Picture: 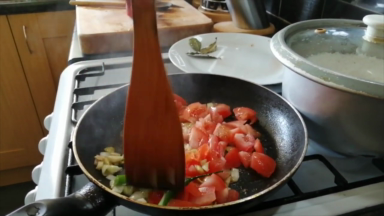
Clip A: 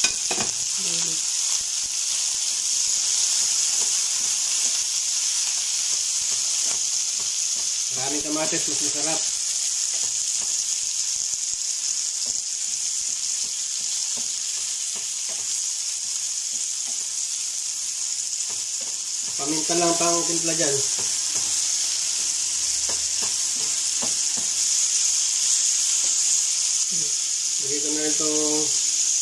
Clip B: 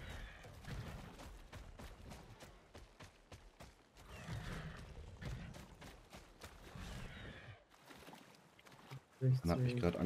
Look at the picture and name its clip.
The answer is A